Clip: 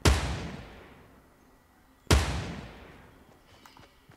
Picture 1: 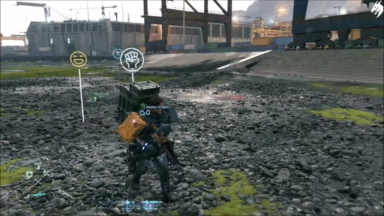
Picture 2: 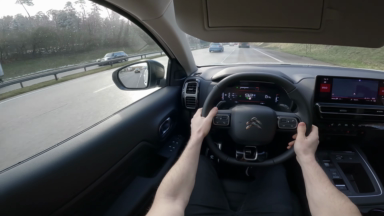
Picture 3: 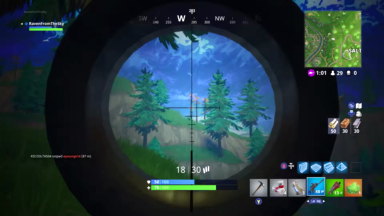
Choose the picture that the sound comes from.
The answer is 3